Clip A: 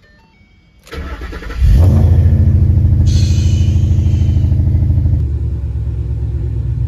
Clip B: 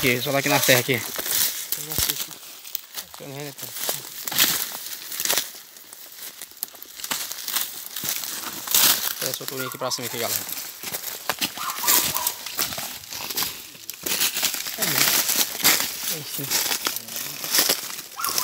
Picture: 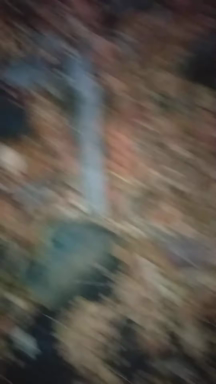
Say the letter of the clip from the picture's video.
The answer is B